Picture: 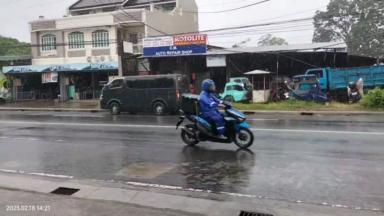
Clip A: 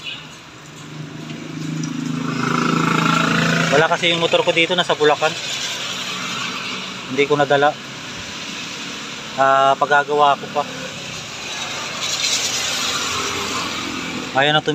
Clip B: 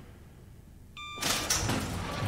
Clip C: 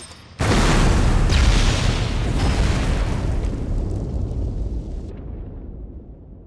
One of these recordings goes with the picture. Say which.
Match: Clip A